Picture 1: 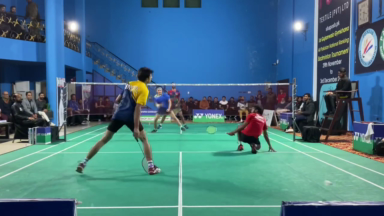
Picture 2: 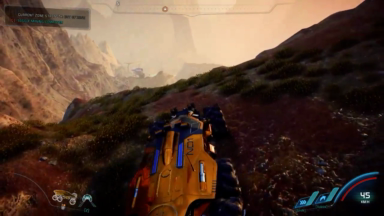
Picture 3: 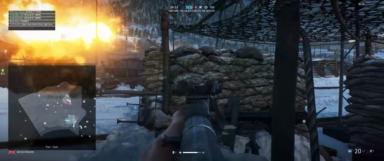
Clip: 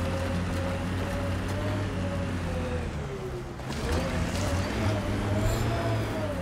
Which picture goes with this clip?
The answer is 2